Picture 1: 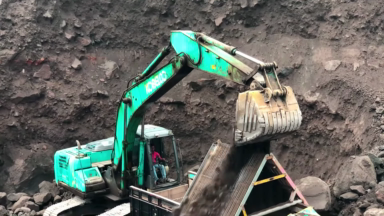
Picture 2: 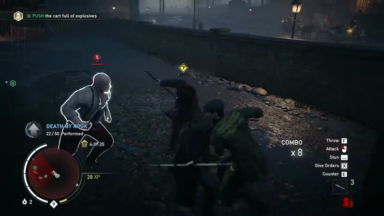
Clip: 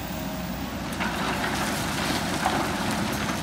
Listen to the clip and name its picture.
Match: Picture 1